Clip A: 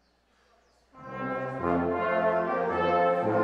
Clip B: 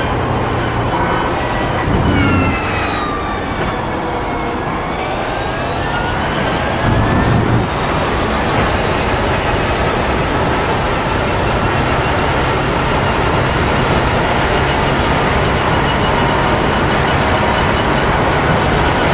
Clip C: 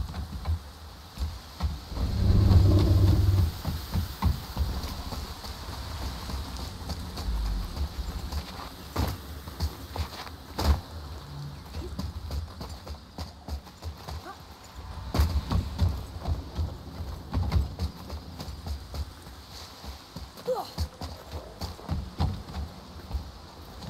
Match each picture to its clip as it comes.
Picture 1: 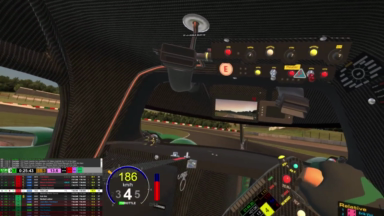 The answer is B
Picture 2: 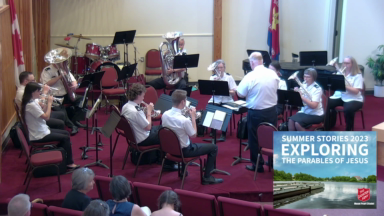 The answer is A